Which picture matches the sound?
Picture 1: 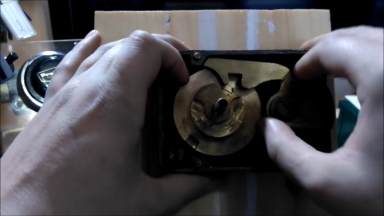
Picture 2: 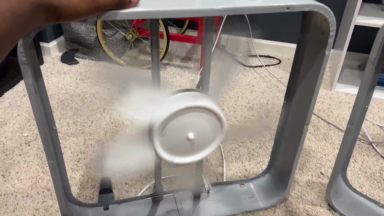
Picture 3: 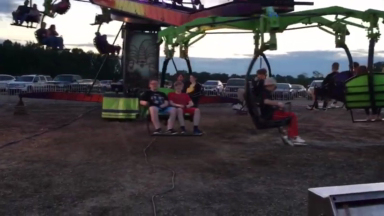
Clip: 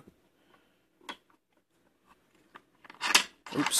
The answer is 1